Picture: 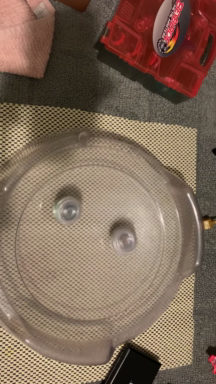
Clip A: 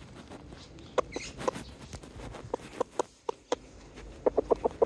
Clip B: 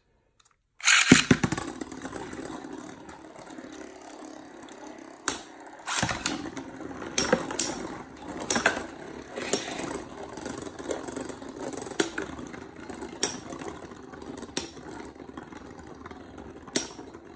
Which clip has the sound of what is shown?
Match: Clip B